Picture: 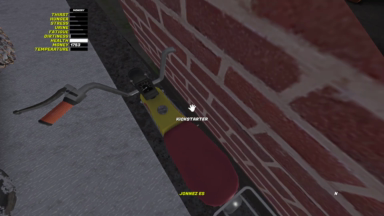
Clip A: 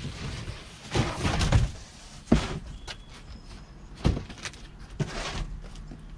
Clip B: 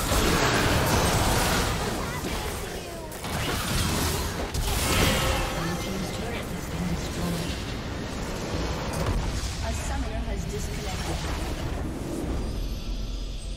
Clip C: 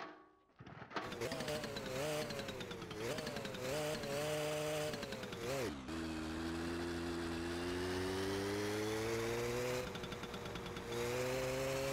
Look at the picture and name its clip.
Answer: C